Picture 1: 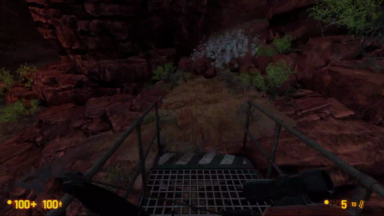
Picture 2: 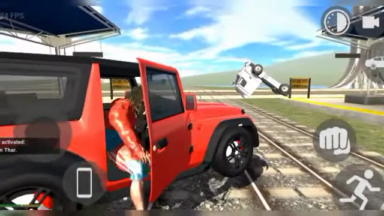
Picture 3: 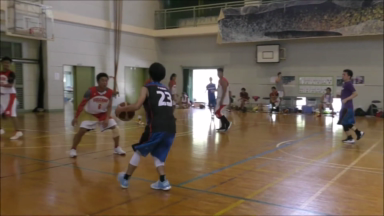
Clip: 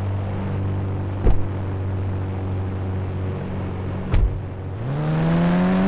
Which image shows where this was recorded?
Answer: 2